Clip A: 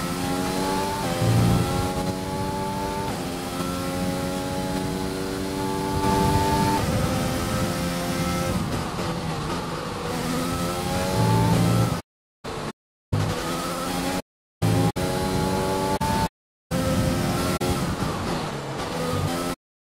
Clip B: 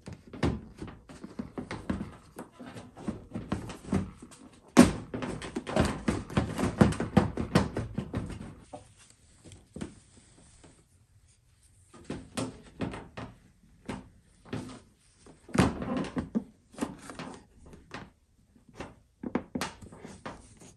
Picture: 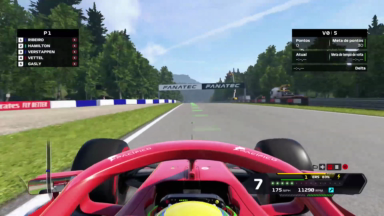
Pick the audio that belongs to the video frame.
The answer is A